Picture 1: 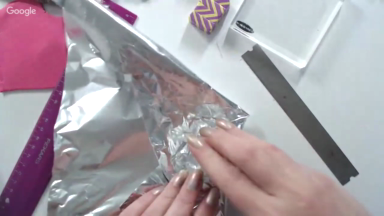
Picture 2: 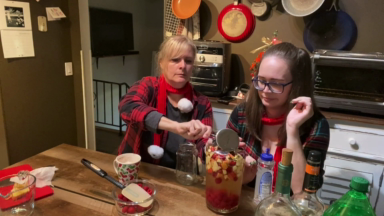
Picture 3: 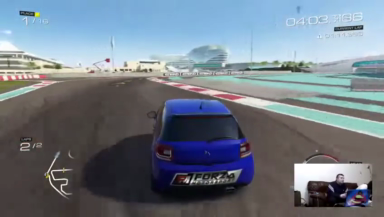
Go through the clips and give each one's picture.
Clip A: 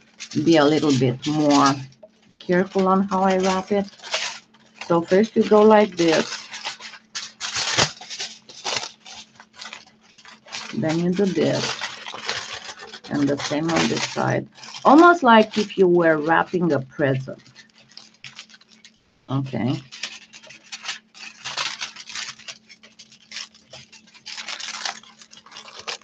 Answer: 1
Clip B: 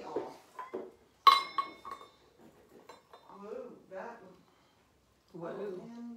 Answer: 2